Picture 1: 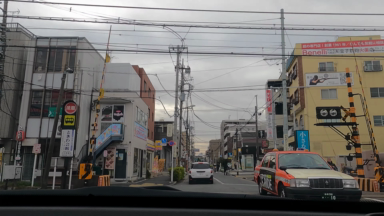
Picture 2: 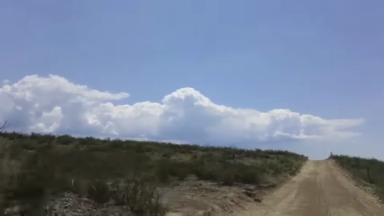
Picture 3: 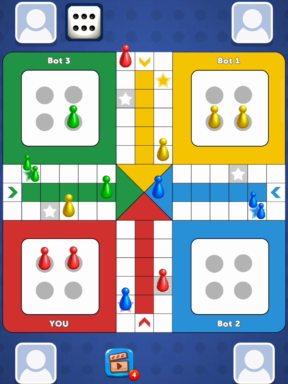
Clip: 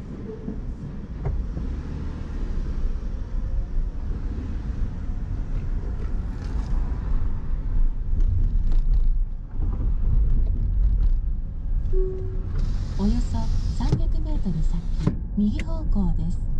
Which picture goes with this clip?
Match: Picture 1